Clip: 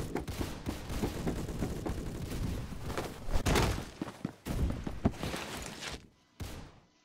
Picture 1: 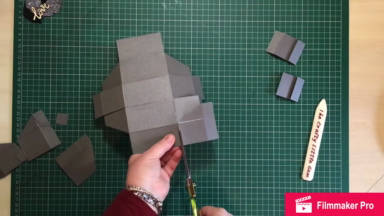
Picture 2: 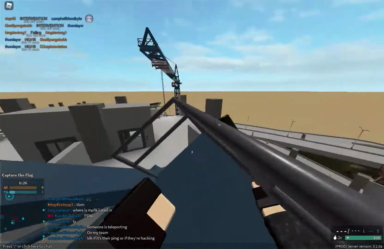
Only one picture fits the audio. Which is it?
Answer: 2